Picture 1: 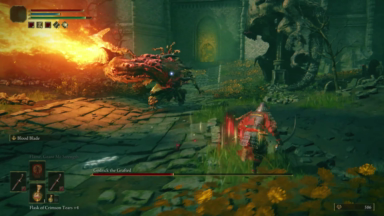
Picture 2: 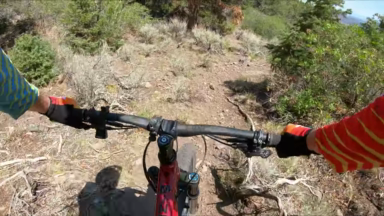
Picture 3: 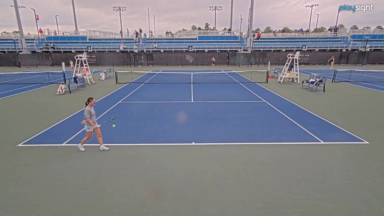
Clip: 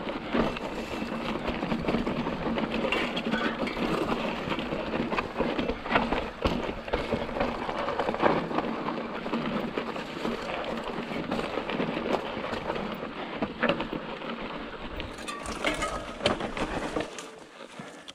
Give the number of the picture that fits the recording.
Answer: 2